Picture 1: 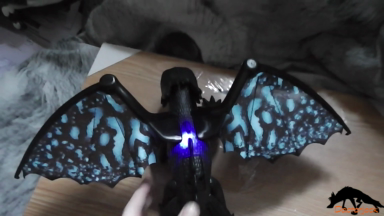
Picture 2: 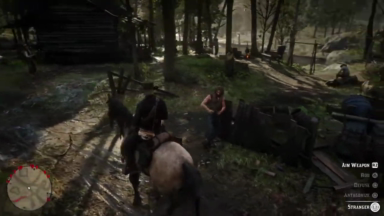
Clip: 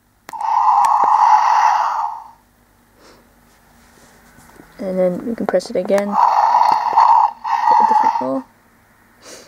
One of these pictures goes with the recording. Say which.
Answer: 1